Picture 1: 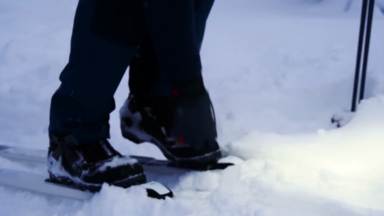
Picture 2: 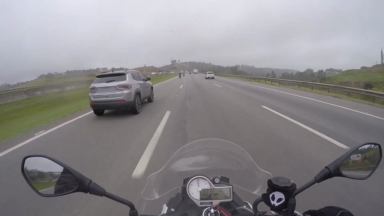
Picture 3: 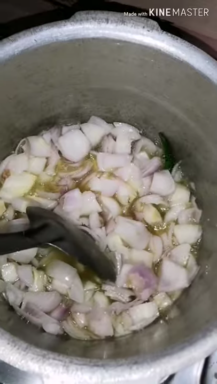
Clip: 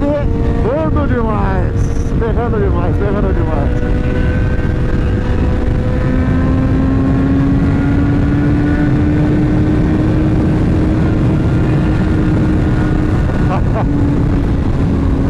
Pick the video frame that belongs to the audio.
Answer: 2